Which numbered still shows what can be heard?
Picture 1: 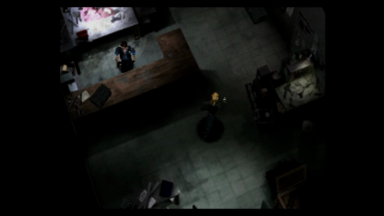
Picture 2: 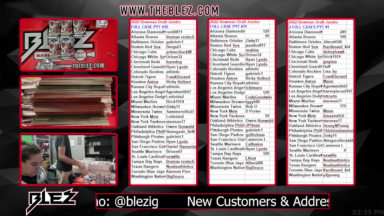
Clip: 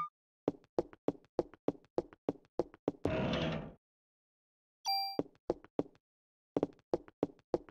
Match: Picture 1